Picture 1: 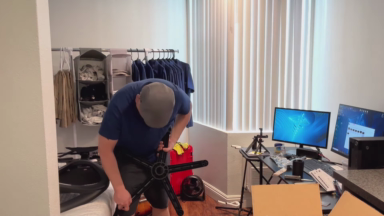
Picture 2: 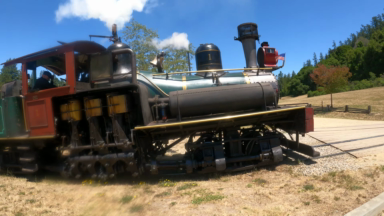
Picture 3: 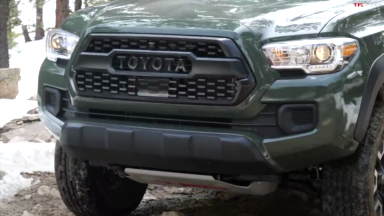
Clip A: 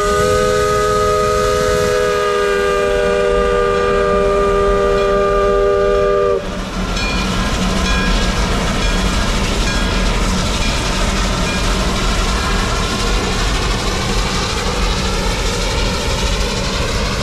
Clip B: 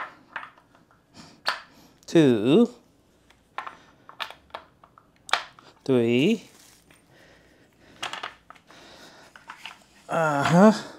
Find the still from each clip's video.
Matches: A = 2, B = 1